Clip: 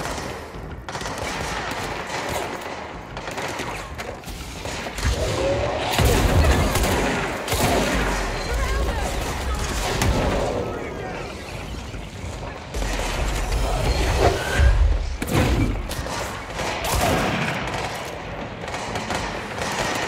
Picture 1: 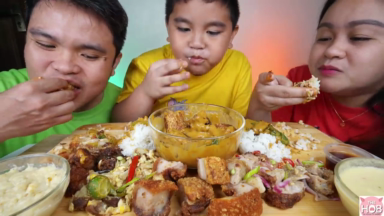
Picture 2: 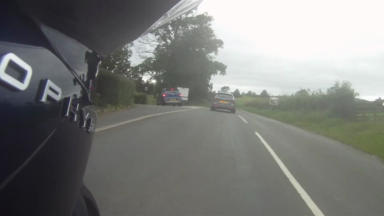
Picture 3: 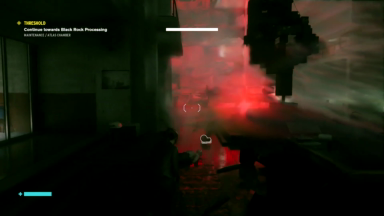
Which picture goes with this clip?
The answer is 3